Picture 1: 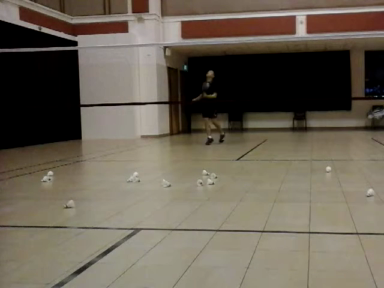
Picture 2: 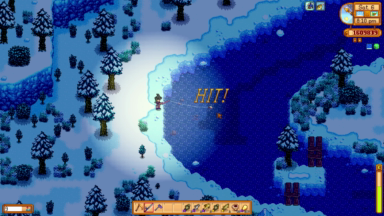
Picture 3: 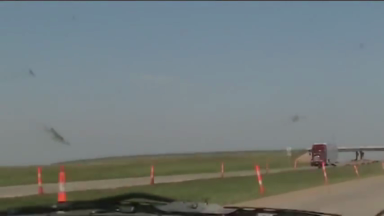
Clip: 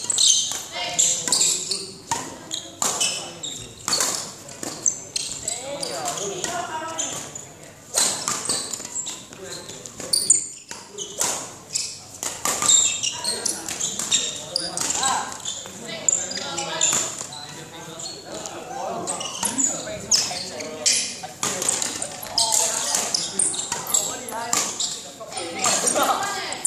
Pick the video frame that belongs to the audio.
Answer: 1